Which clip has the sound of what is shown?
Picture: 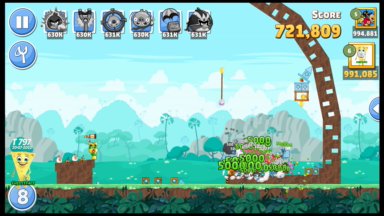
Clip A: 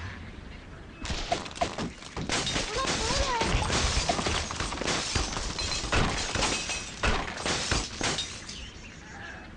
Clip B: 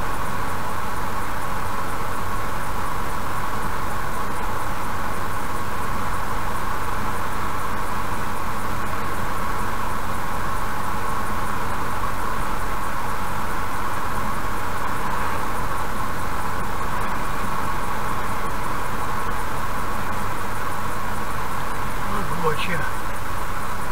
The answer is A